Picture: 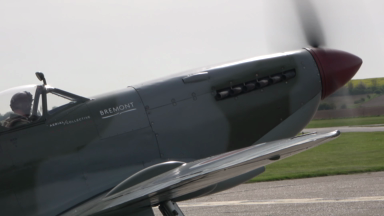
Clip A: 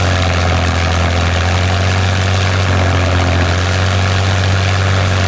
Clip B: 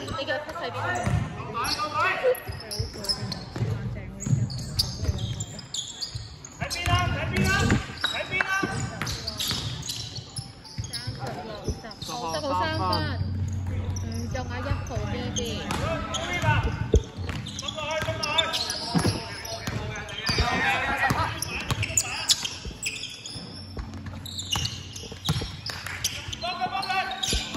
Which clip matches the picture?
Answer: A